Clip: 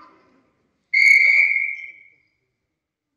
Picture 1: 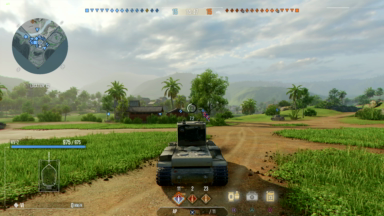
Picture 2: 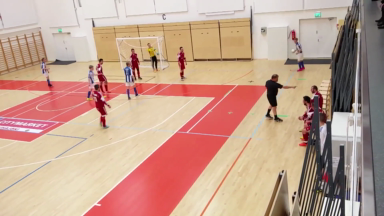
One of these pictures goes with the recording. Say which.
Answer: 2